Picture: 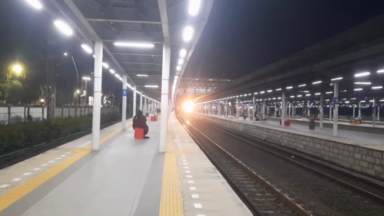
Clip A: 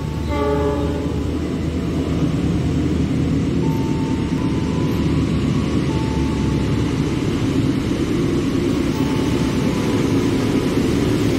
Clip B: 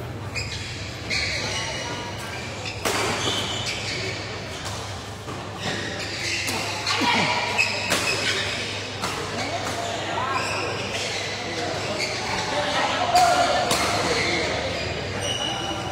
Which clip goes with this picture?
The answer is A